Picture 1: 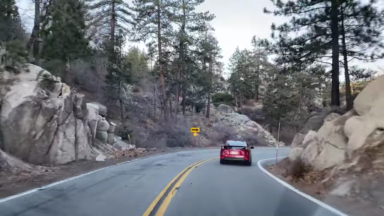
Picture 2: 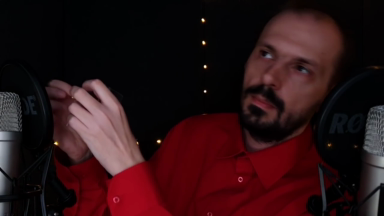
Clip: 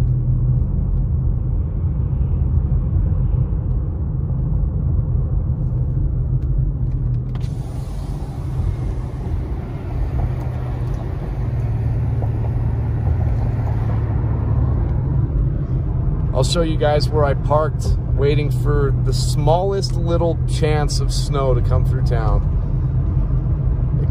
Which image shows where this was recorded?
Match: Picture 1